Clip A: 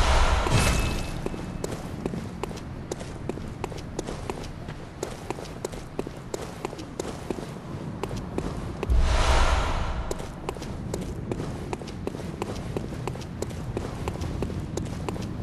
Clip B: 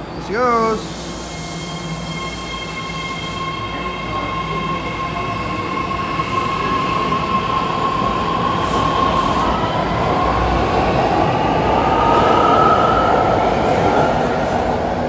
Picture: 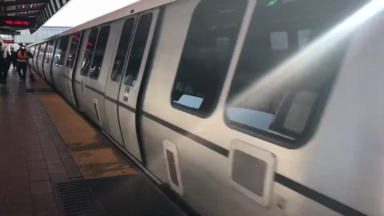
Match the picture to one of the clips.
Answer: B